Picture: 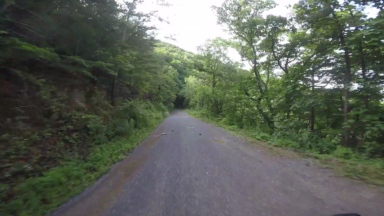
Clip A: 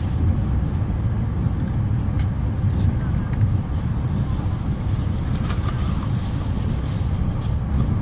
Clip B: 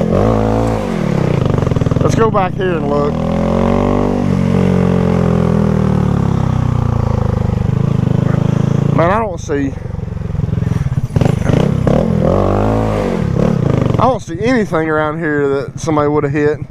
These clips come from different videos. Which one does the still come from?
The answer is B